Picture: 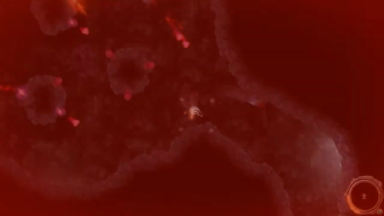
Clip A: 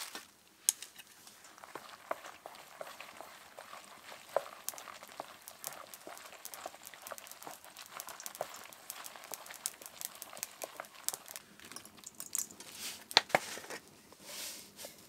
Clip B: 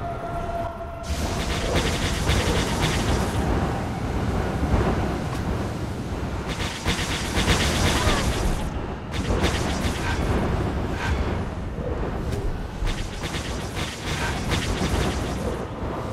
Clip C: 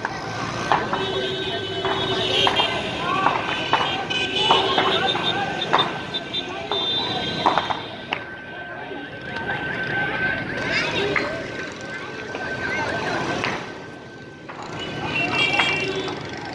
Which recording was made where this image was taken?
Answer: B